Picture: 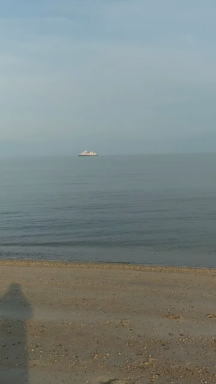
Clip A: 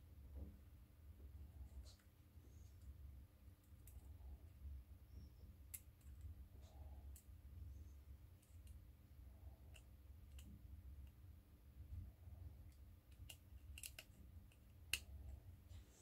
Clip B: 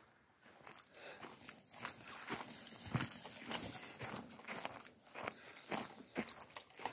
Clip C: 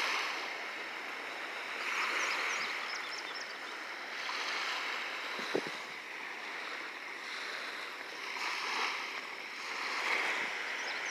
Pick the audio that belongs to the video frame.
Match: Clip C